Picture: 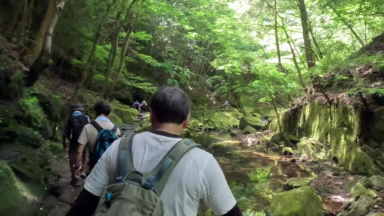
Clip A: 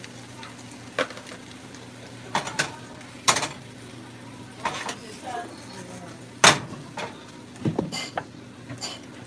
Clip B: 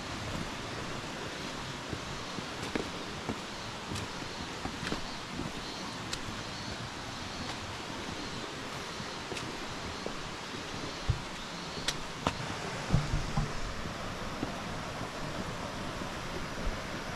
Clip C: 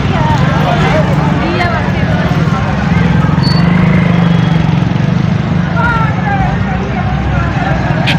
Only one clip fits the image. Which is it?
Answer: B